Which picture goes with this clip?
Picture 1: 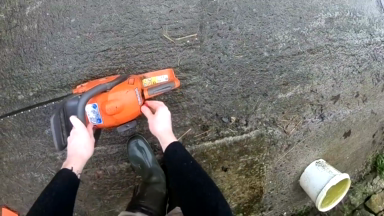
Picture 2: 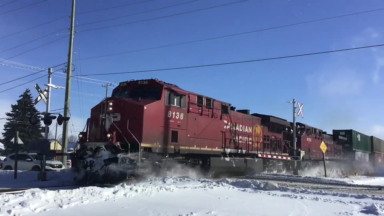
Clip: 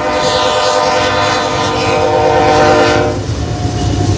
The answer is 2